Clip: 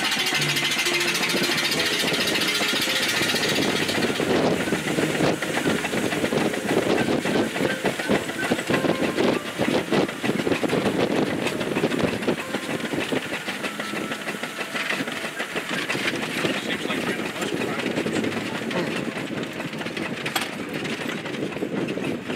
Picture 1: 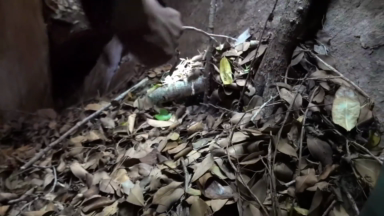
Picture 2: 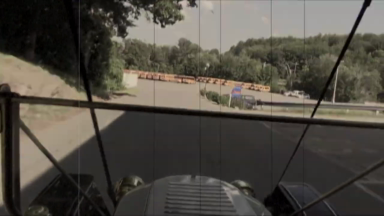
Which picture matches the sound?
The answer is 2